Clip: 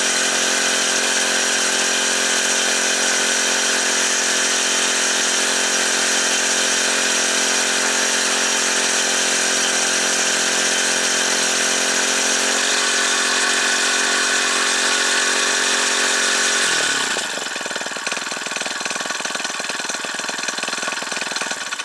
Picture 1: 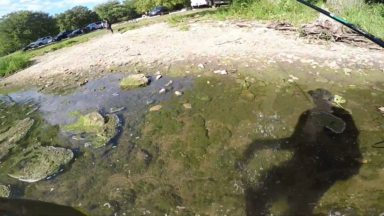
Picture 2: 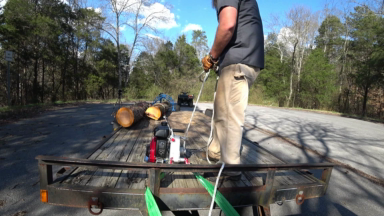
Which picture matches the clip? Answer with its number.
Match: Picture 2